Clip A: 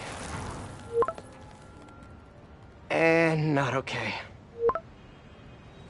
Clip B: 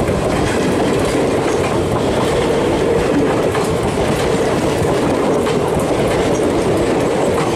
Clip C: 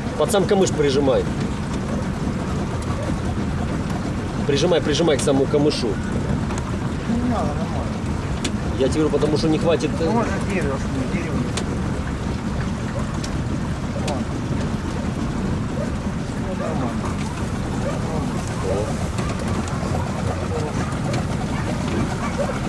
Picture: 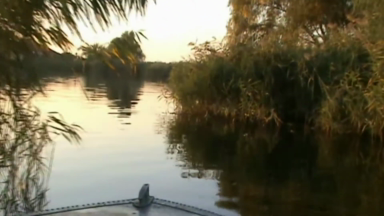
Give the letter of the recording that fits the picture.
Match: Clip C